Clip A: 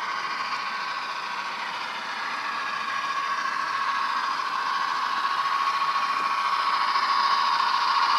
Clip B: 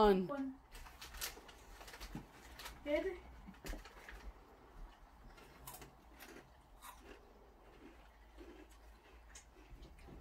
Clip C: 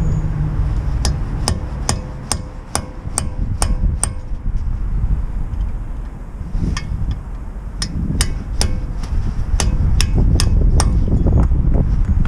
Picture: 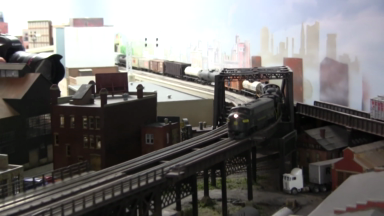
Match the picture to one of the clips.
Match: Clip A